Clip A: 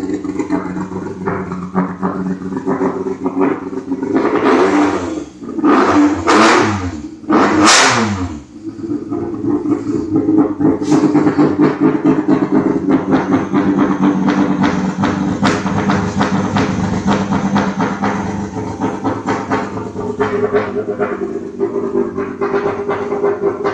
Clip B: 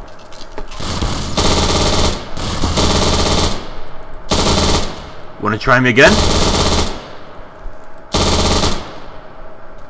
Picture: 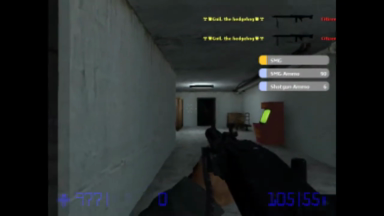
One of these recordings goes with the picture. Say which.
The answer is B